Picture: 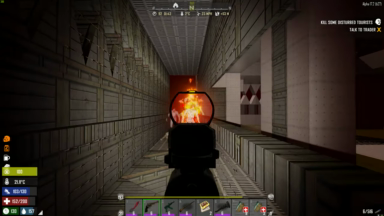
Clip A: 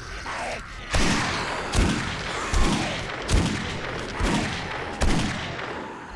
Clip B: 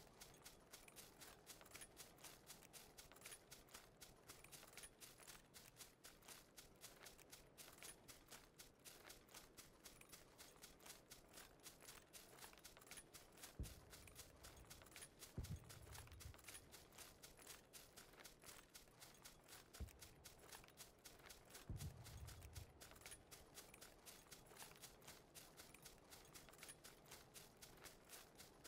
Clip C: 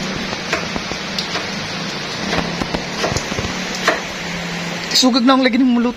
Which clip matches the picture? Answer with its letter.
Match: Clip A